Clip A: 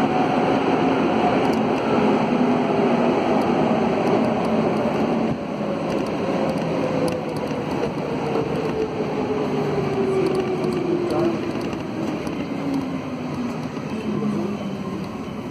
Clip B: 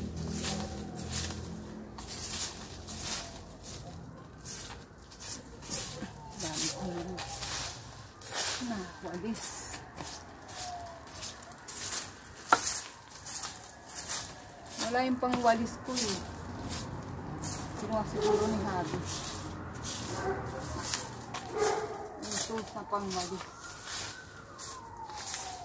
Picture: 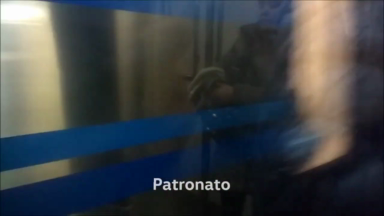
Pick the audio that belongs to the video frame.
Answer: A